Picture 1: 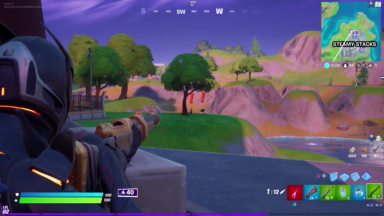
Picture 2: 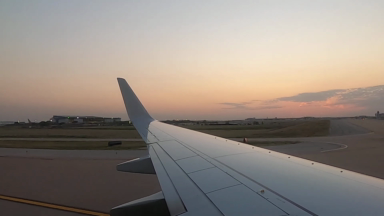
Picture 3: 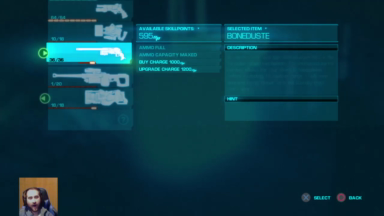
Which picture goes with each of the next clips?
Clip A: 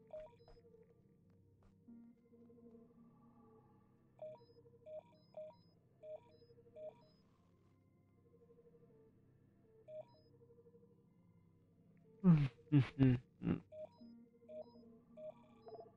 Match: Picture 3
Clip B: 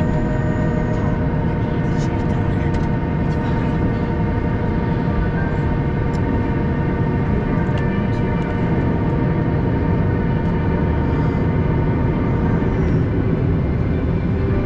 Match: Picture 2